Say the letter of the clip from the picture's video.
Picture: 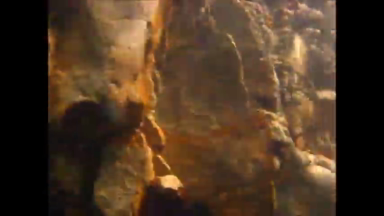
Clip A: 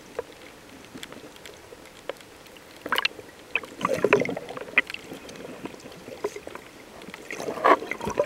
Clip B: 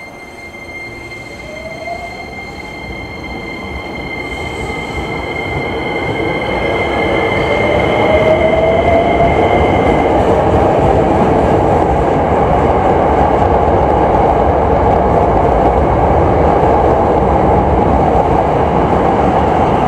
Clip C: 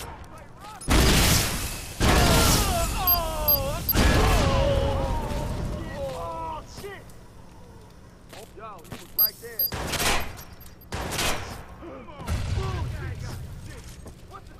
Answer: A